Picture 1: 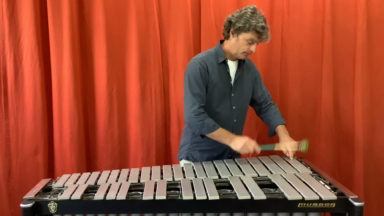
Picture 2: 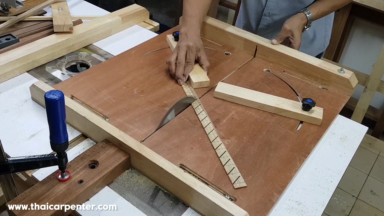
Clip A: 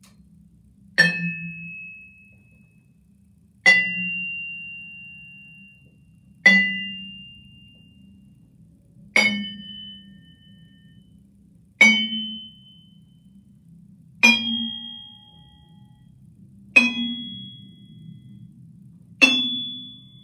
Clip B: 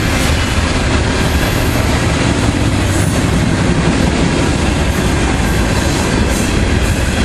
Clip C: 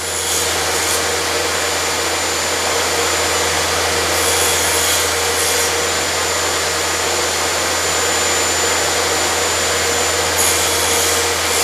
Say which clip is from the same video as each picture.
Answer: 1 A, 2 C